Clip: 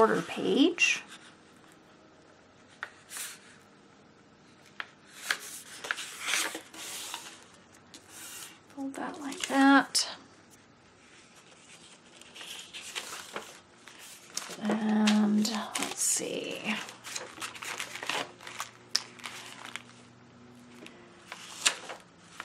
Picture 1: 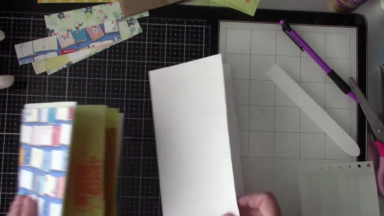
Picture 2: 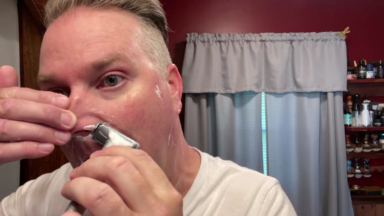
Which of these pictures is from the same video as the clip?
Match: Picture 1